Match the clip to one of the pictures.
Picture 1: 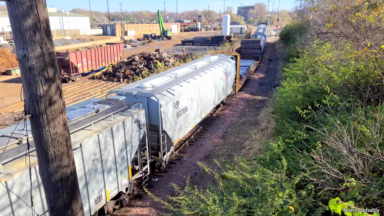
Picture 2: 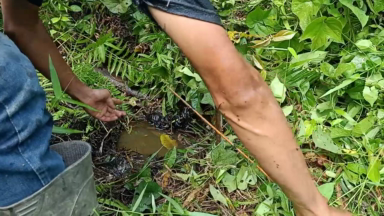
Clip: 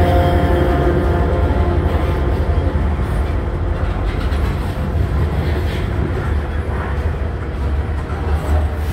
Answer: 1